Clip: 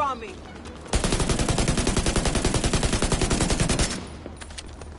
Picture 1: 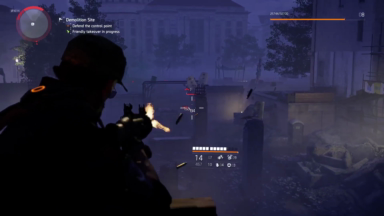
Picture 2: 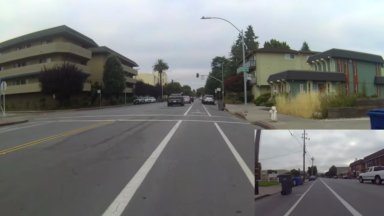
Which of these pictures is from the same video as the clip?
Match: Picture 1